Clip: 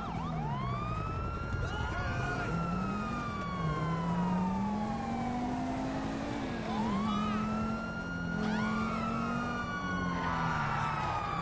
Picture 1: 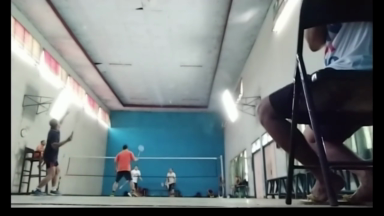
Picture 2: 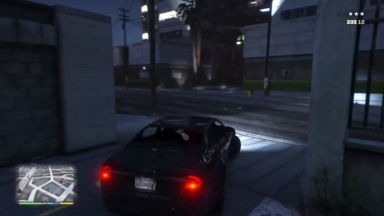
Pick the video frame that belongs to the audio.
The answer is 2